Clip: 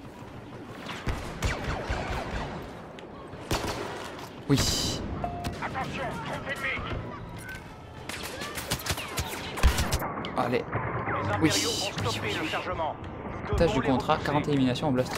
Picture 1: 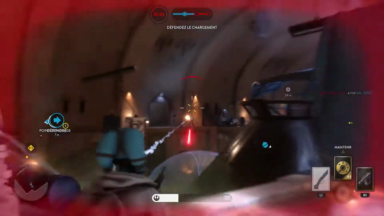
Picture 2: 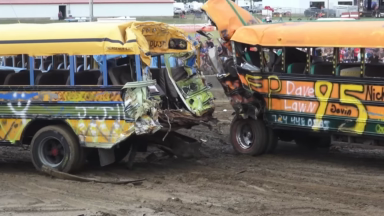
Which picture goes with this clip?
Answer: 1